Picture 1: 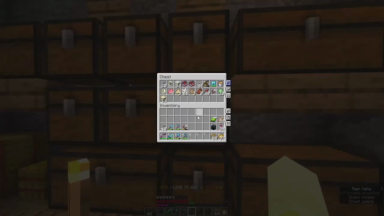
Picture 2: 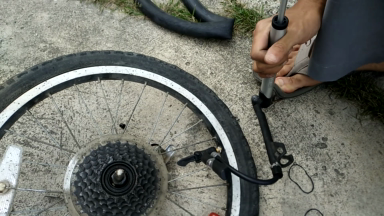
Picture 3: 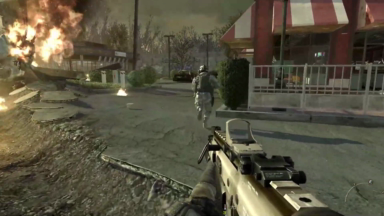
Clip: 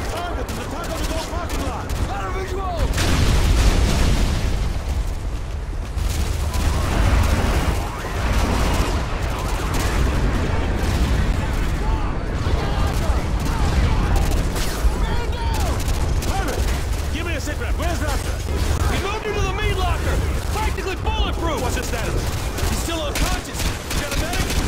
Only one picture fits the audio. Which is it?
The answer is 3